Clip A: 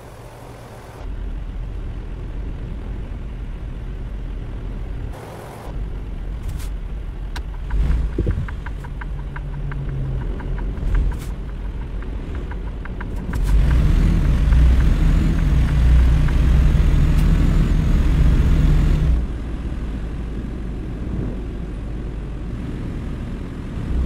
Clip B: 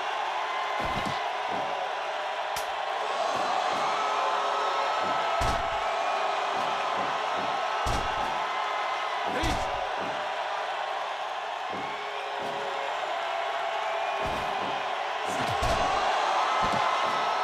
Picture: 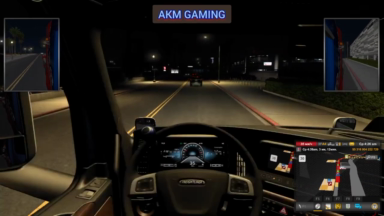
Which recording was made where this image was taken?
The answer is A